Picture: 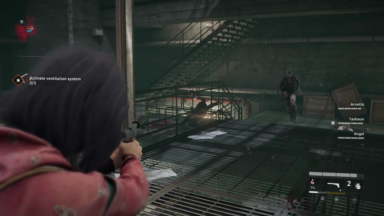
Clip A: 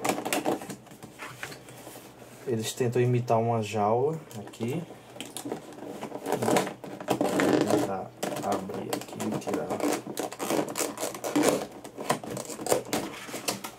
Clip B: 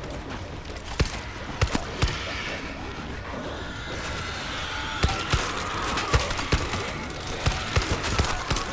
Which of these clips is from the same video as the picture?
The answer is B